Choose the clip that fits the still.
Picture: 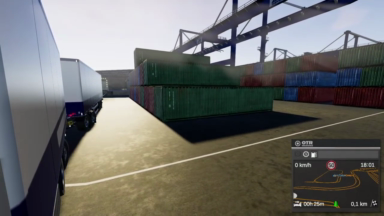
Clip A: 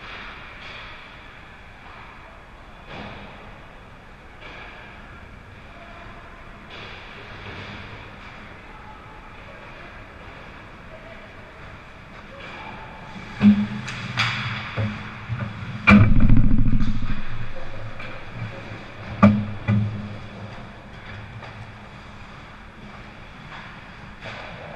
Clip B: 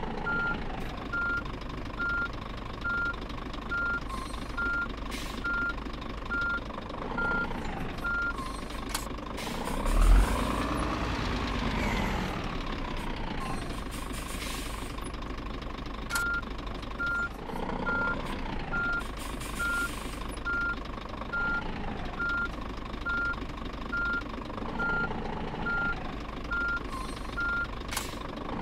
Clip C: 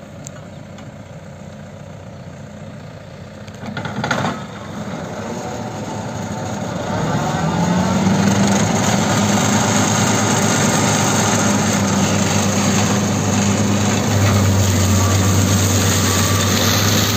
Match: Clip B